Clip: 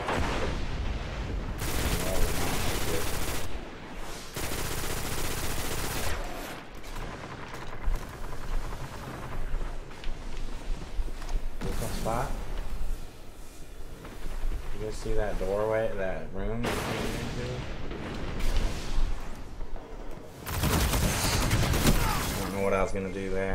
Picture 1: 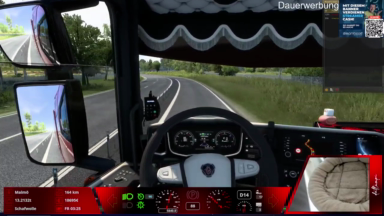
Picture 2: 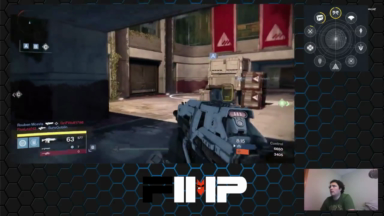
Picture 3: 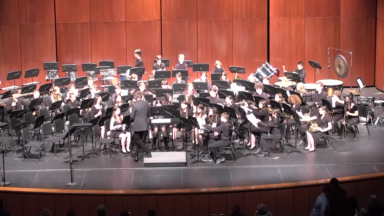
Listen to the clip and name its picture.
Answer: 2